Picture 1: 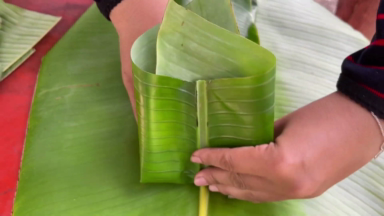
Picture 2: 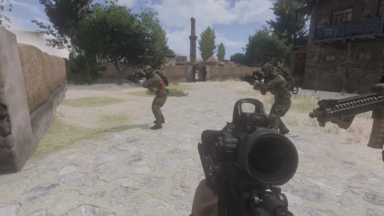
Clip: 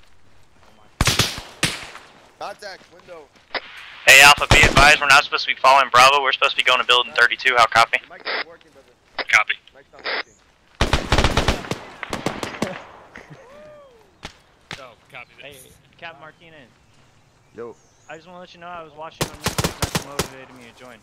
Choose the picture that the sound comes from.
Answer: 2